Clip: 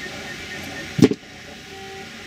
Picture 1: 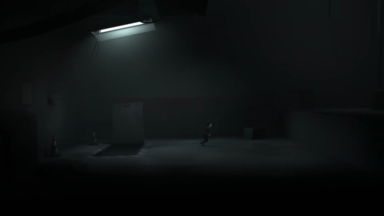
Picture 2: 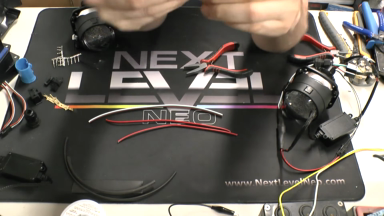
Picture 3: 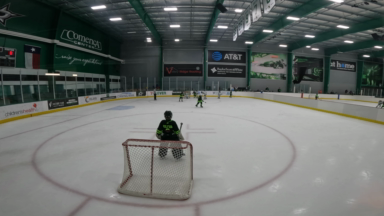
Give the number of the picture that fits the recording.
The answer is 2